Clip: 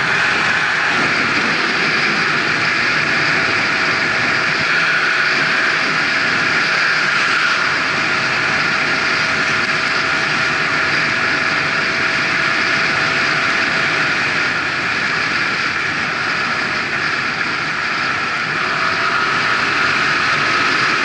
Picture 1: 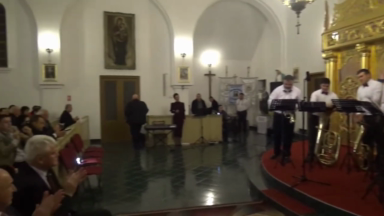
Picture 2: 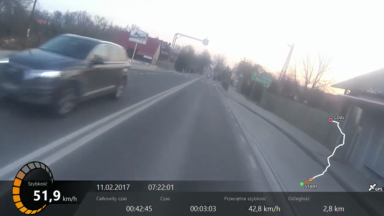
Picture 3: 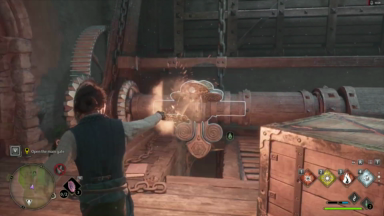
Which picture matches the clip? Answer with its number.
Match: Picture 2